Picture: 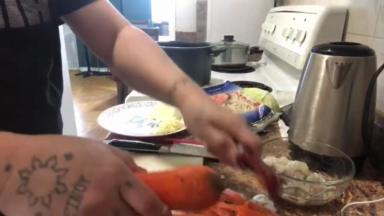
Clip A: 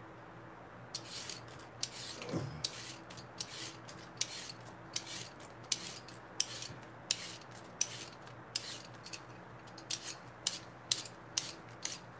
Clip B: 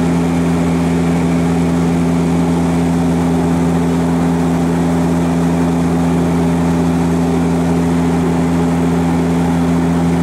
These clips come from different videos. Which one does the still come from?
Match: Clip A